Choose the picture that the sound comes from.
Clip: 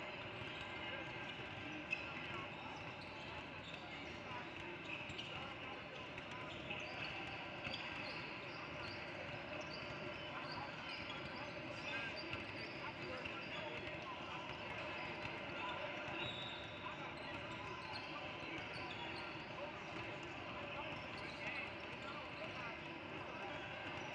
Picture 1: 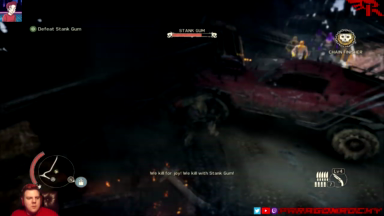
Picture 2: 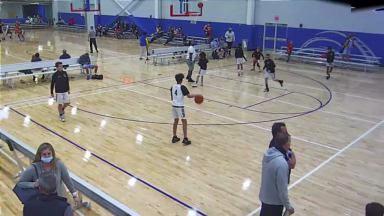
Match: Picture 2